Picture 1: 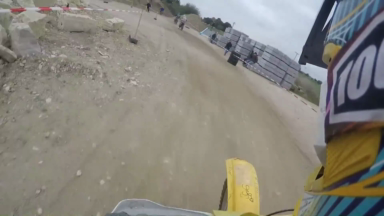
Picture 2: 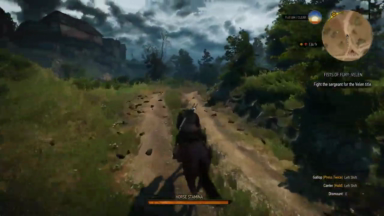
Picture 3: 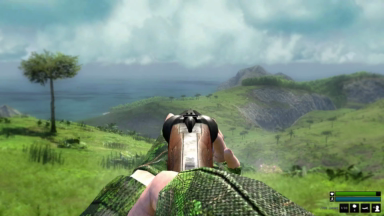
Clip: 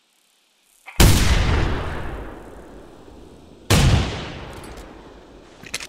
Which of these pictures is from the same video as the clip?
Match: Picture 3